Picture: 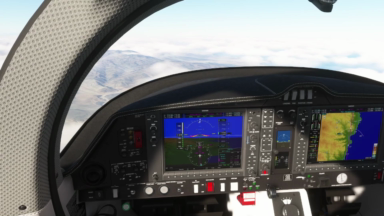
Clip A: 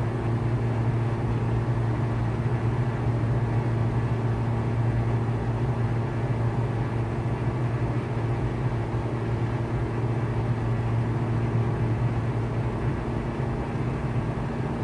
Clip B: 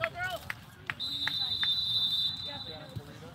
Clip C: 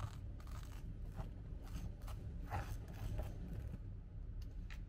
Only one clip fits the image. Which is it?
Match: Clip A